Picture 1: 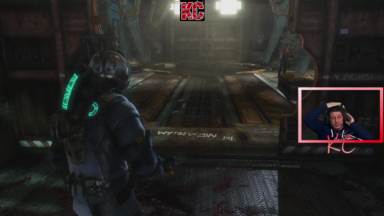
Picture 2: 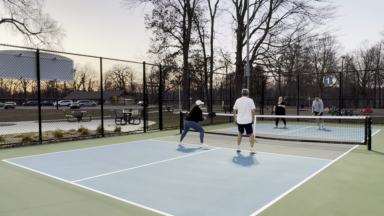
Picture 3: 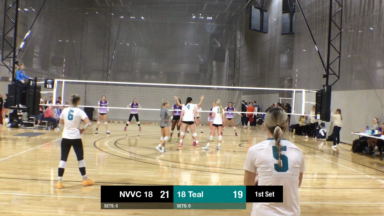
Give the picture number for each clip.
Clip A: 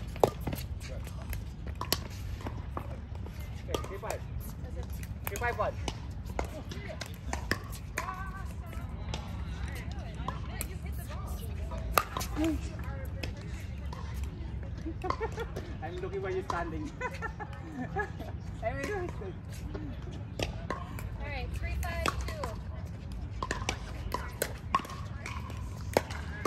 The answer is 2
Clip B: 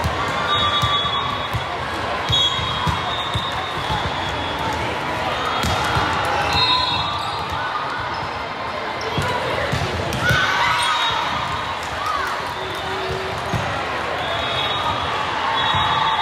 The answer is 3